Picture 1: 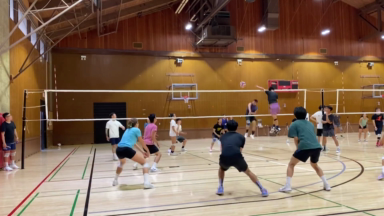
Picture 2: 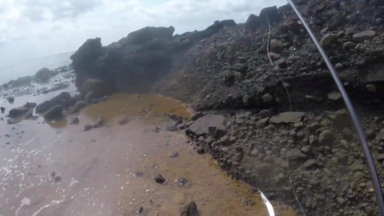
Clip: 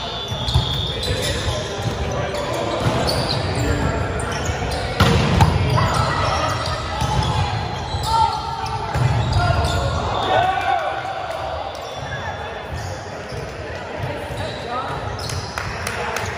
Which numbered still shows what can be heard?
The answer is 1